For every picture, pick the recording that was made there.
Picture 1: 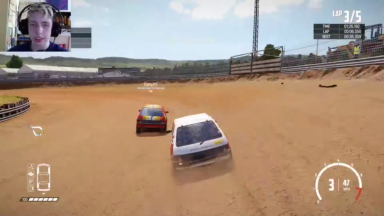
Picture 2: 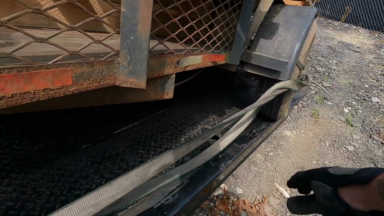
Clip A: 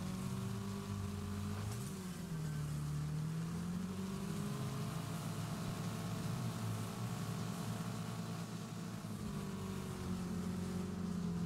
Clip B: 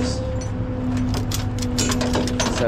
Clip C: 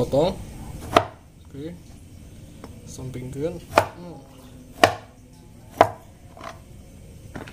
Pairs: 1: A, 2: B